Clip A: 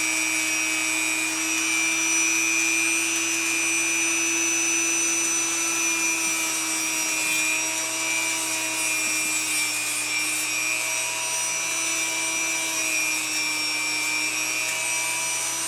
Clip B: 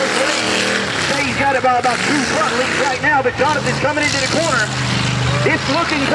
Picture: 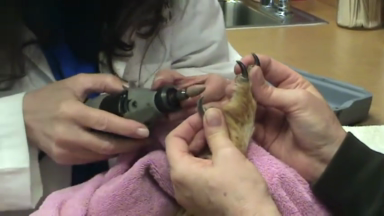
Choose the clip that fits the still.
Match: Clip A